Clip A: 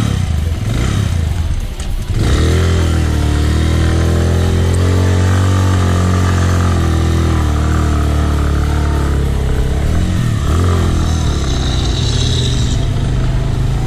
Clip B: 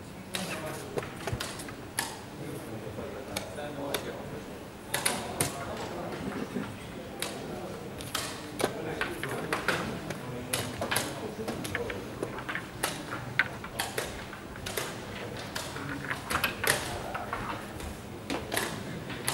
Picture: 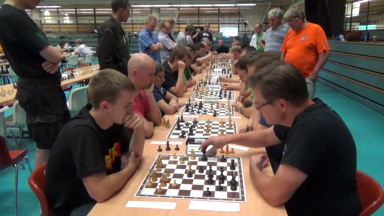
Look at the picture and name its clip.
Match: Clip B